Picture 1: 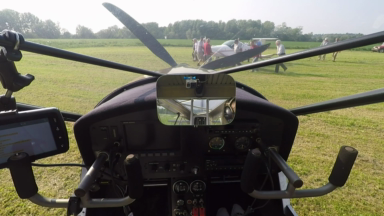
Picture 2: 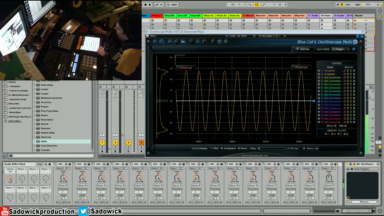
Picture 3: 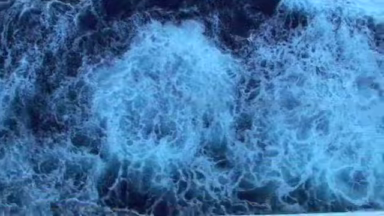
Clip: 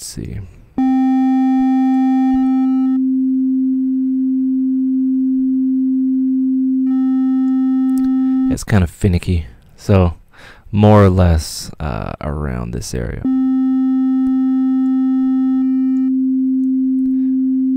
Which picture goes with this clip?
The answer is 2